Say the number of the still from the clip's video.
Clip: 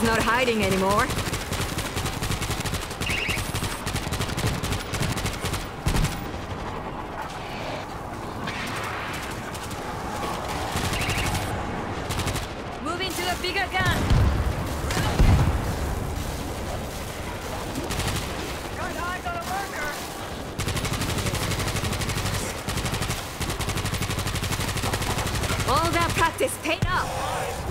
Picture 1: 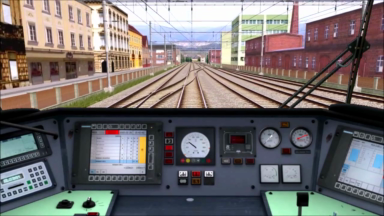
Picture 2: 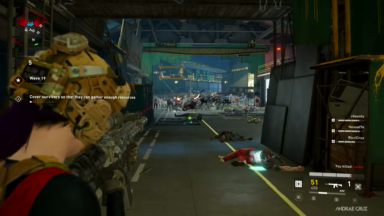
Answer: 2